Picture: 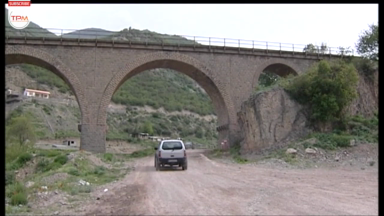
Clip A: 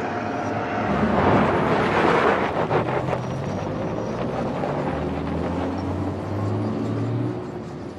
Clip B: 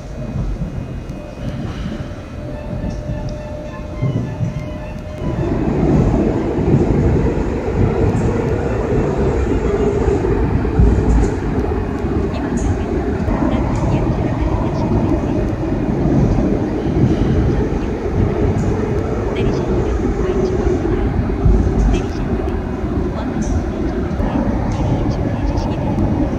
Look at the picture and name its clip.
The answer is A